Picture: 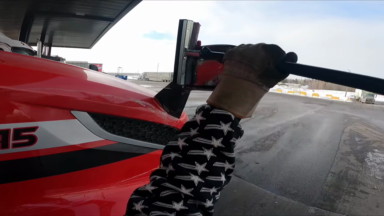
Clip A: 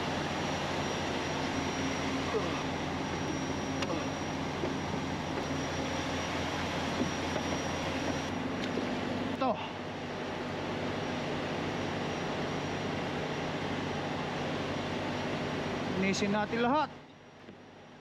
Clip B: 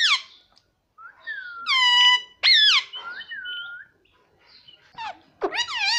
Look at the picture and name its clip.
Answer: A